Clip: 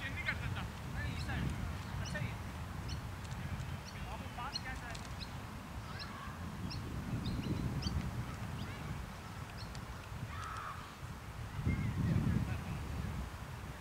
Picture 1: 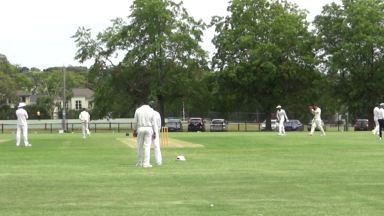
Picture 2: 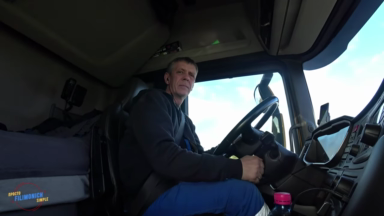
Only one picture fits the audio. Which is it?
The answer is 1